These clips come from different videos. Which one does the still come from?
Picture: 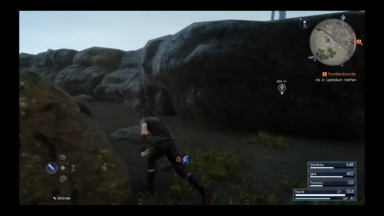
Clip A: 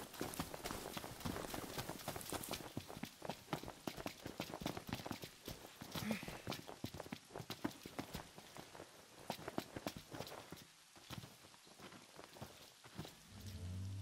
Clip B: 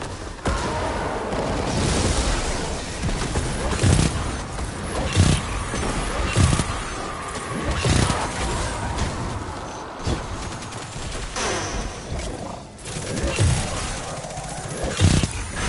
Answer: A